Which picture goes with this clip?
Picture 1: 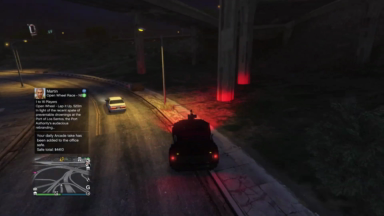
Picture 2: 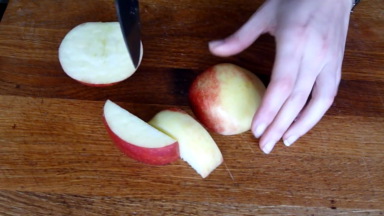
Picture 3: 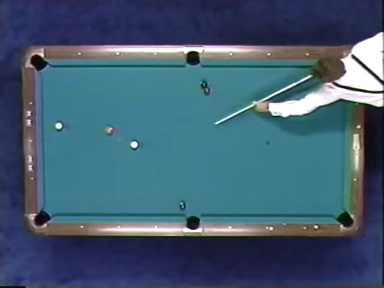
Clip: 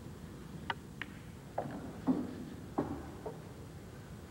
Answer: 3